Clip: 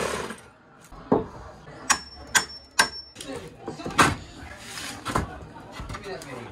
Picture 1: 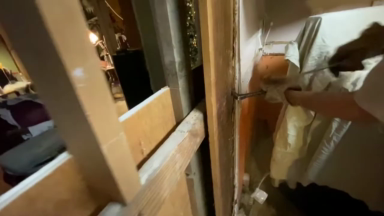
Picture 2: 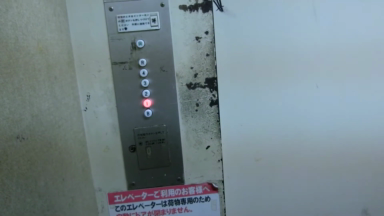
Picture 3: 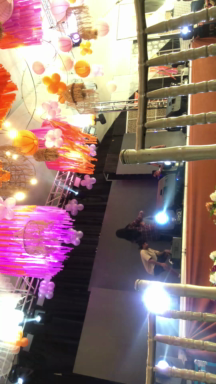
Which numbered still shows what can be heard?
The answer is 1